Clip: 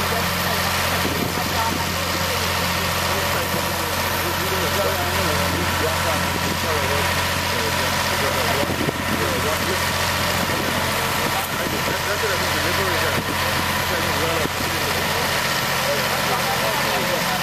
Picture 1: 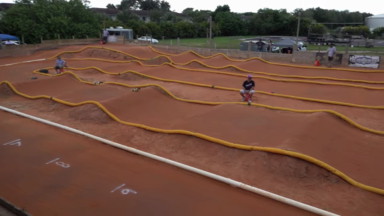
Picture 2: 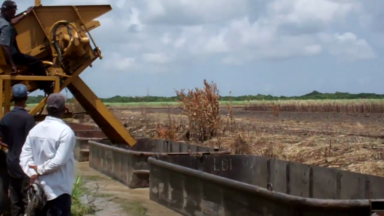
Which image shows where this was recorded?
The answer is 2